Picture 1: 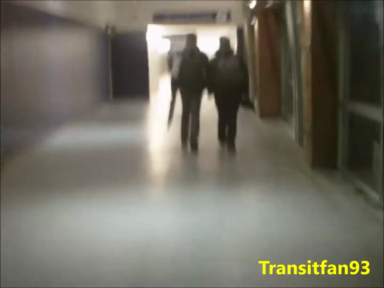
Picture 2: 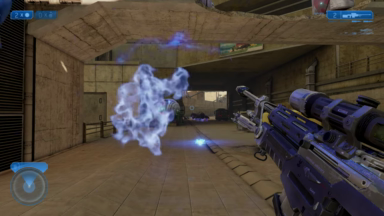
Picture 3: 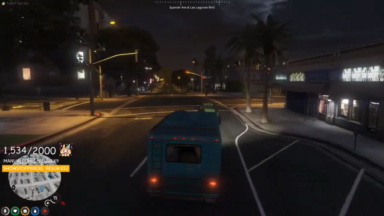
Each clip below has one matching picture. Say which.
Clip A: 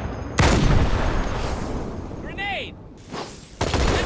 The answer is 2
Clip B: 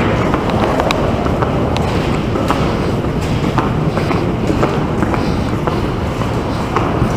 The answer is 1